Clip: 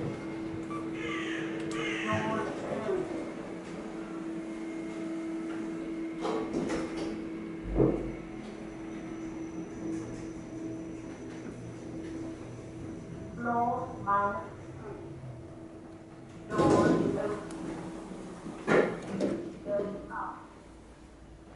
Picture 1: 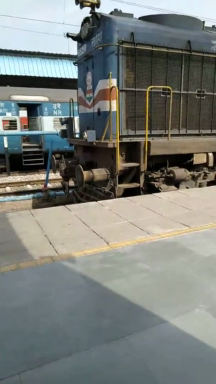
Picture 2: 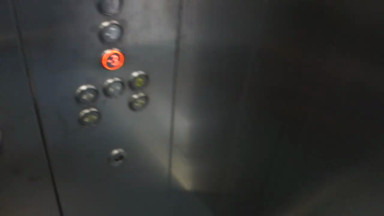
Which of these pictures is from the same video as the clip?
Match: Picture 2